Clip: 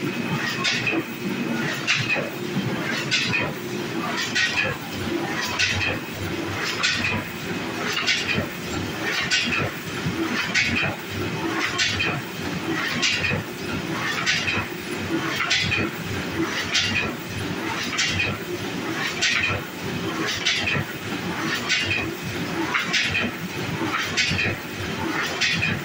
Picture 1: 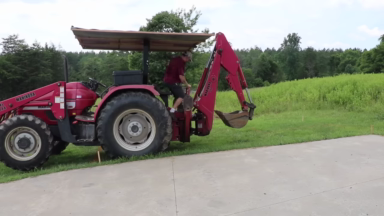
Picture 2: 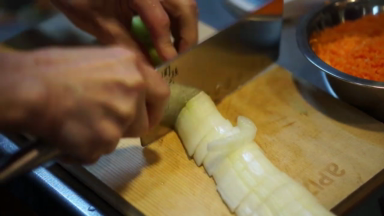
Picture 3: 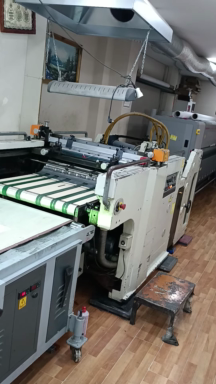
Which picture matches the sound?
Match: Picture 3